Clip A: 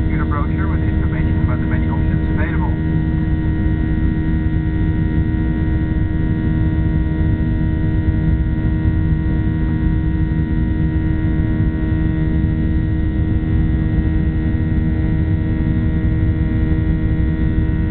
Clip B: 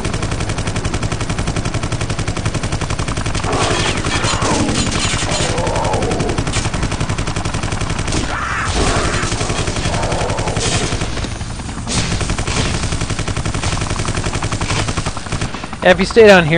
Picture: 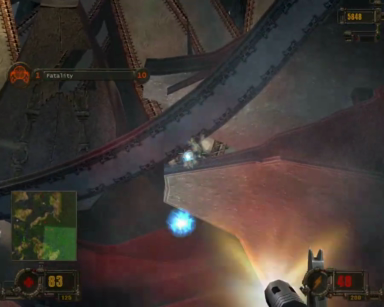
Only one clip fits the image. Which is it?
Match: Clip B